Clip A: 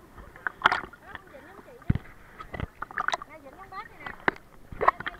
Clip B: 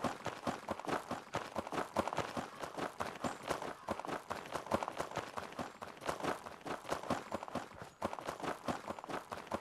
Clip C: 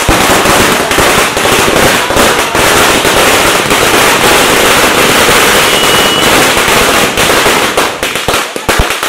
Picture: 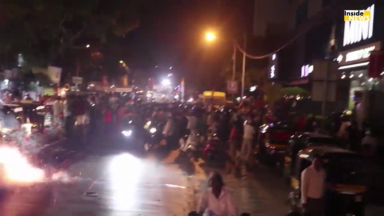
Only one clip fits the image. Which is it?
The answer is C